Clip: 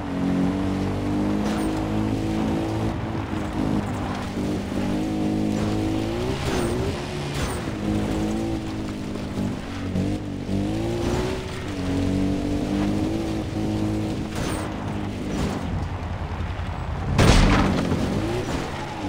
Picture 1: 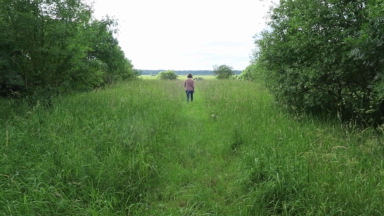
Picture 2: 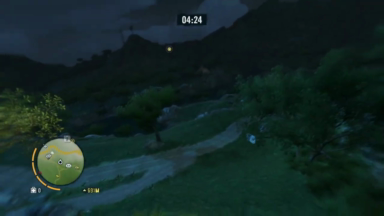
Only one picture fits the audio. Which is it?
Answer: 2